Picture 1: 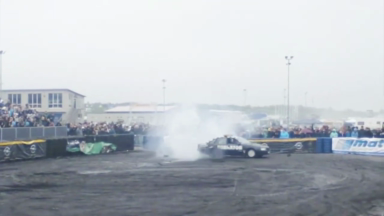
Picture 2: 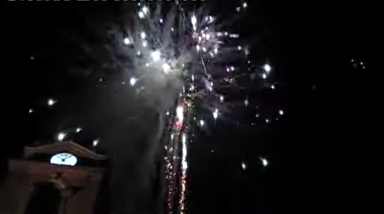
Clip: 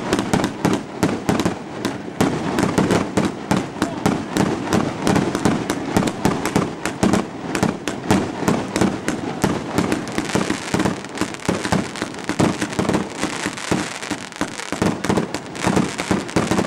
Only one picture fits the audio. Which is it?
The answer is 2